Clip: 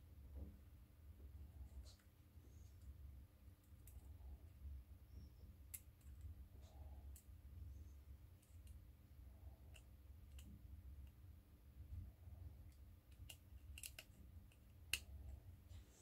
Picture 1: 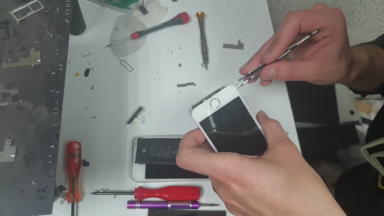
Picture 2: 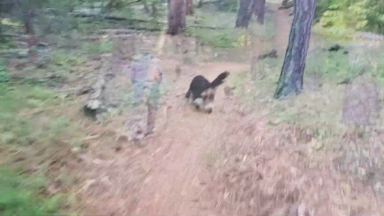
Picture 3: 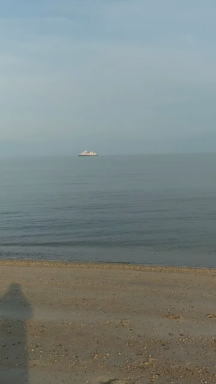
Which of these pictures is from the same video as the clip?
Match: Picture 1